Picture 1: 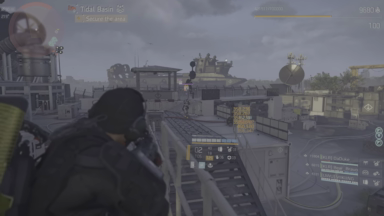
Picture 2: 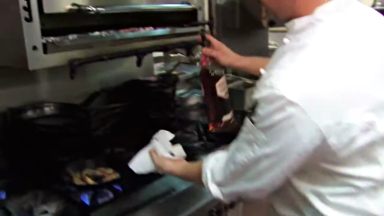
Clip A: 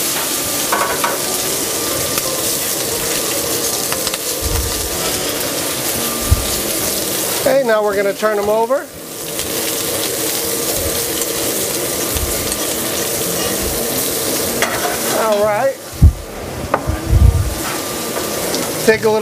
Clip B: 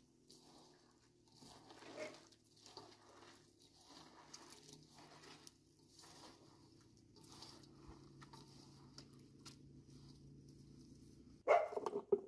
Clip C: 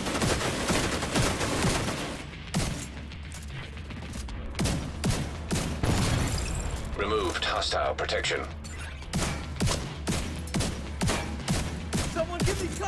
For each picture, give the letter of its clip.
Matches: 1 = C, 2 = A